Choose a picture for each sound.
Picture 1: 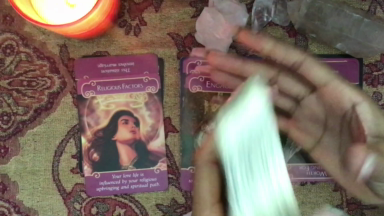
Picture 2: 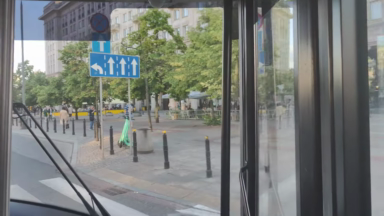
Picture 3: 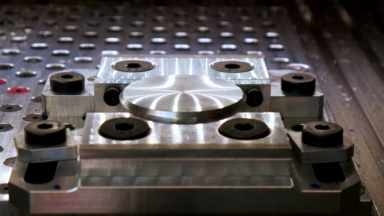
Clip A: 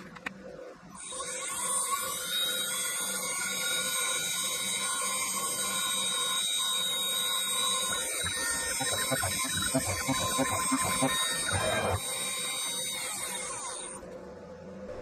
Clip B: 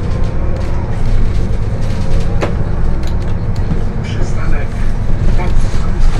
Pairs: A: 3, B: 2